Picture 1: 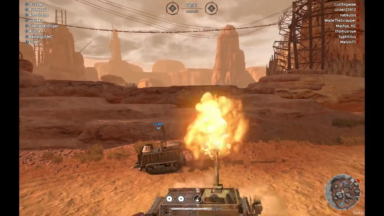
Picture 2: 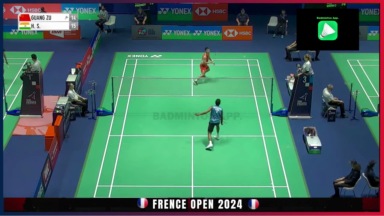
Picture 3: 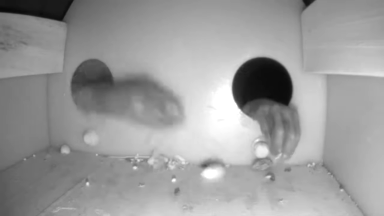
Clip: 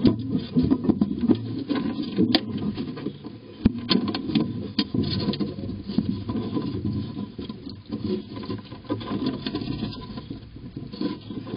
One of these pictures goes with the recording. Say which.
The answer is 3